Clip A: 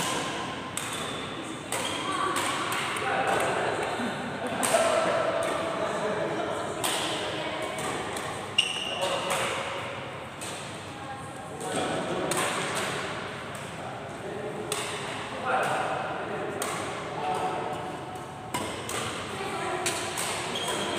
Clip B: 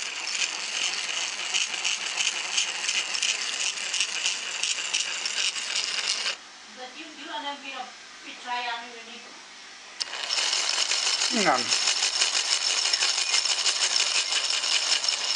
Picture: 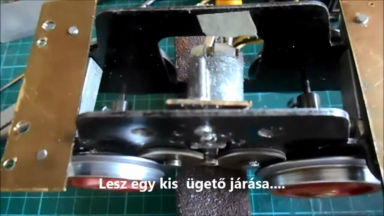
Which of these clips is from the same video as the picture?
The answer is B